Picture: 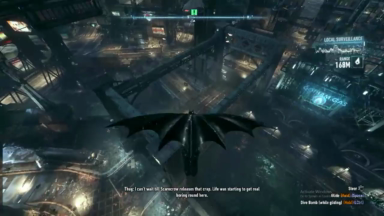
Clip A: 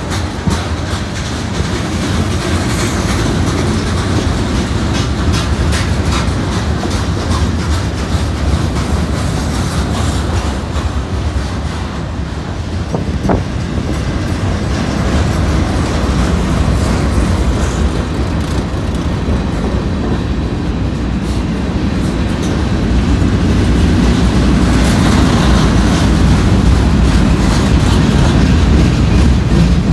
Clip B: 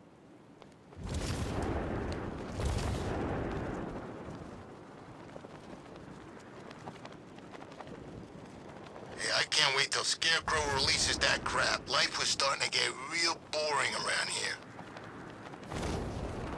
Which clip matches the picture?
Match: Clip B